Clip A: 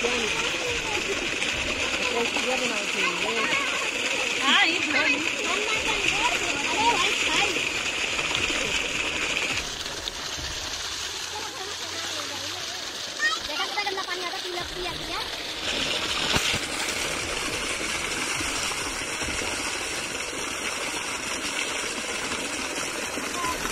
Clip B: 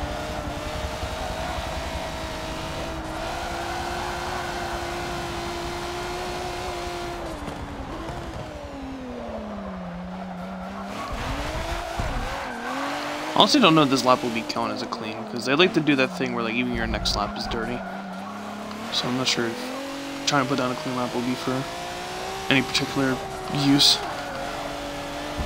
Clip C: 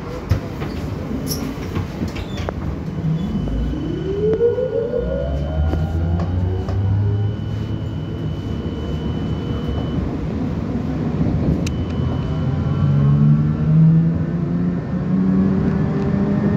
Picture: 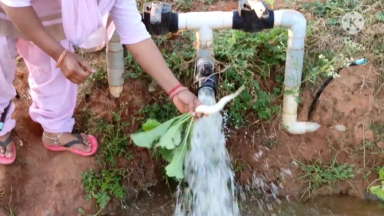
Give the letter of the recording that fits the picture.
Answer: A